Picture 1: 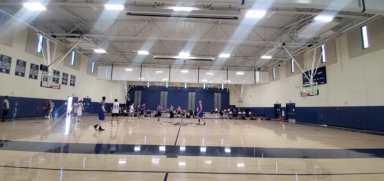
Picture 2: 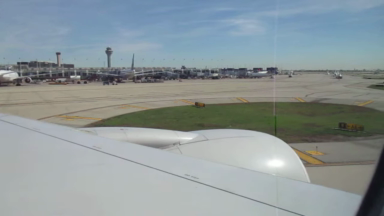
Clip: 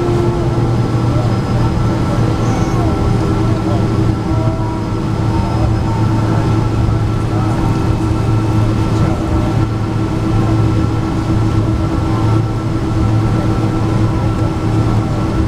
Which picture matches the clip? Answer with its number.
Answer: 2